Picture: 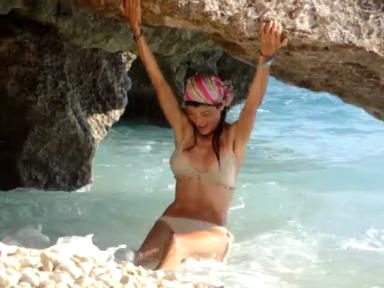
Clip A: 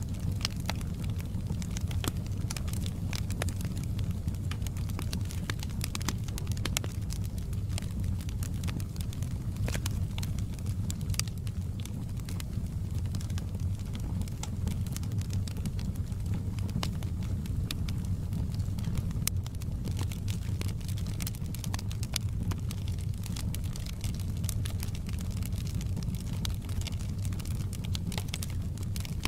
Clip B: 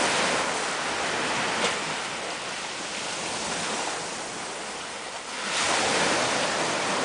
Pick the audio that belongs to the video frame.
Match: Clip B